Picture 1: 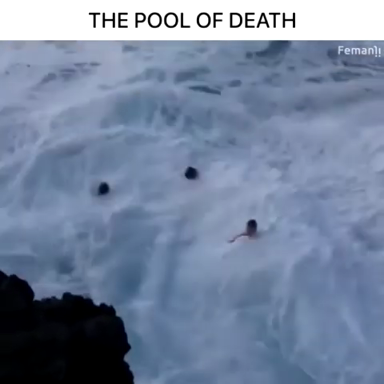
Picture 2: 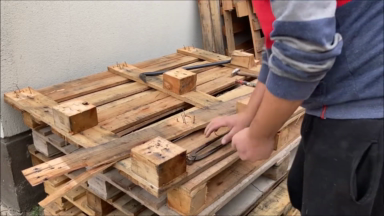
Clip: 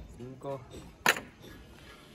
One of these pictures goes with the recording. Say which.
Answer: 2